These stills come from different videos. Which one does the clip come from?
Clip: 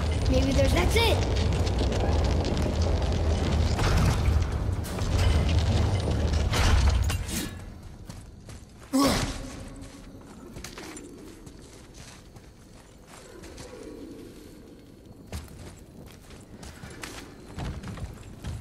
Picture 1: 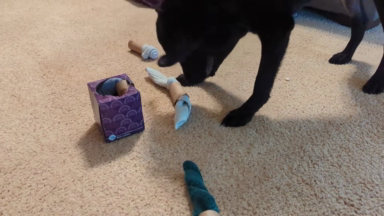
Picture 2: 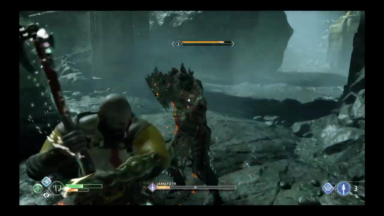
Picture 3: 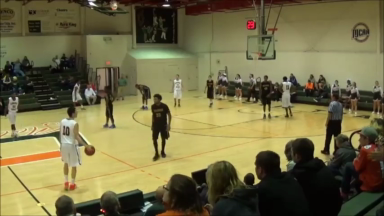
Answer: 2